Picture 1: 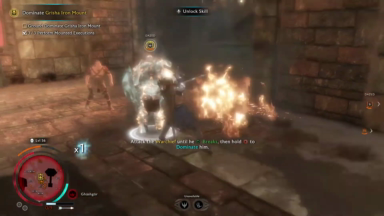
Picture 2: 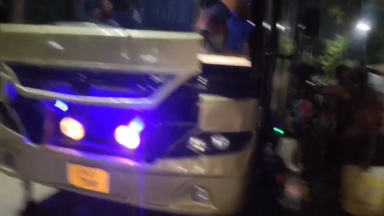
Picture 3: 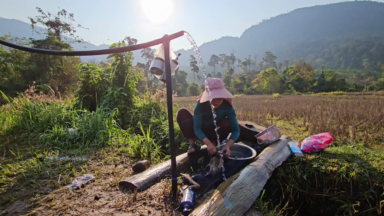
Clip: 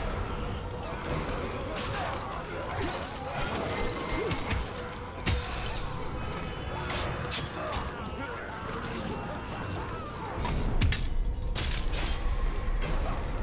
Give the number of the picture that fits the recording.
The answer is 1